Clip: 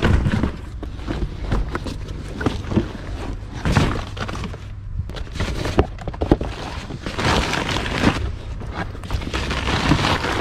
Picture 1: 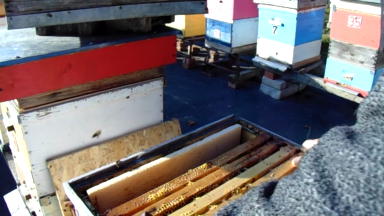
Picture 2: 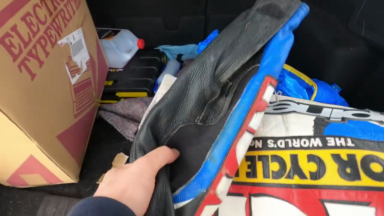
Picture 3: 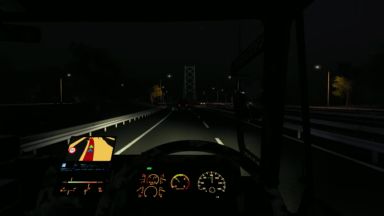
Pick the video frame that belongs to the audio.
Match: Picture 2